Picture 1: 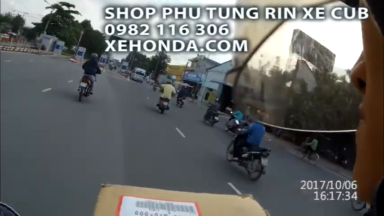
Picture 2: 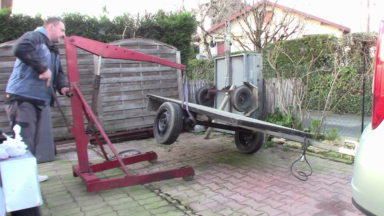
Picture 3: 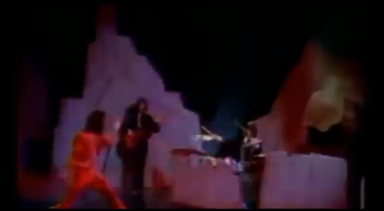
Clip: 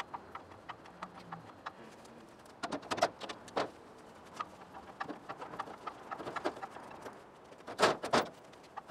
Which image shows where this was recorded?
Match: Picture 2